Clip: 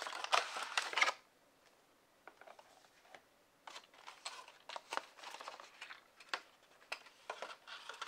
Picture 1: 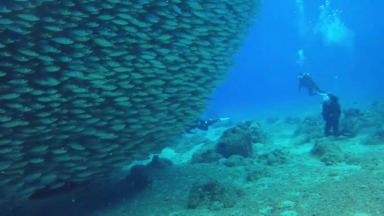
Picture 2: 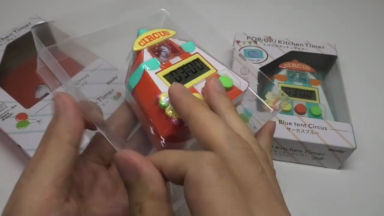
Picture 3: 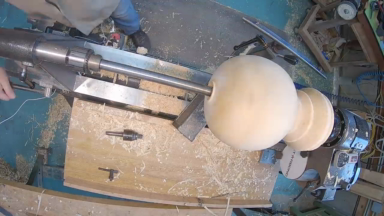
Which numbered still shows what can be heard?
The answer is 2